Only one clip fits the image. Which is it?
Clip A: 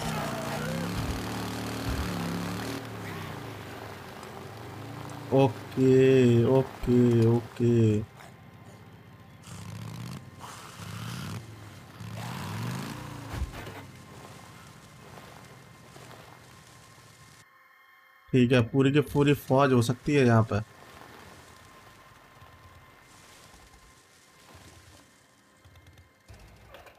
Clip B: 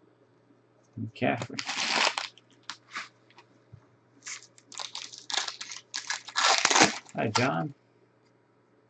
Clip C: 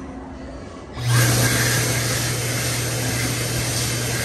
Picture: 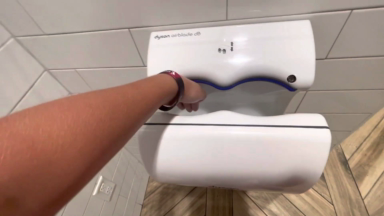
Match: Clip C